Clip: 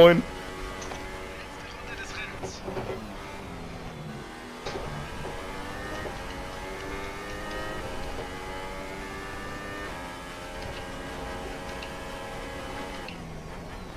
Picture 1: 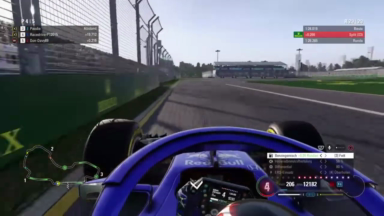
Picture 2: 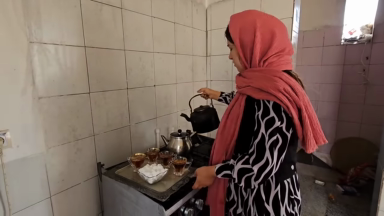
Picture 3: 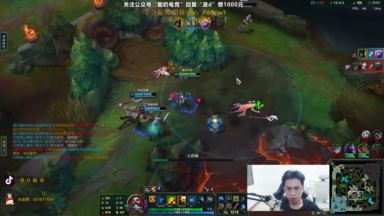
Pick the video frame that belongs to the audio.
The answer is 1